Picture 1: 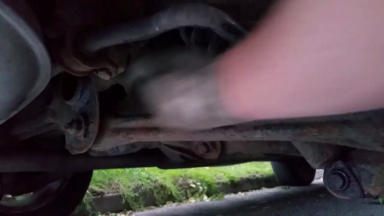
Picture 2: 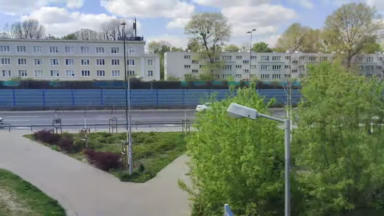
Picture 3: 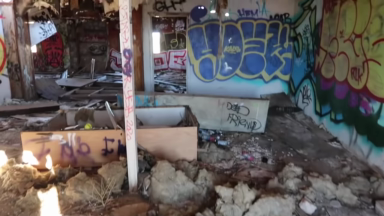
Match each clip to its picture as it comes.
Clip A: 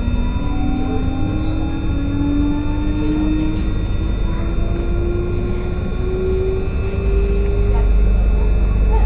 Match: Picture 2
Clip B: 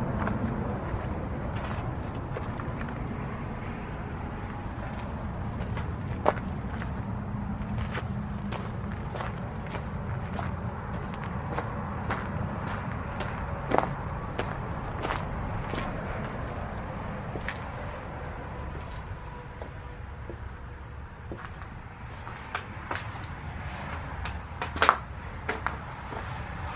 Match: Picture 3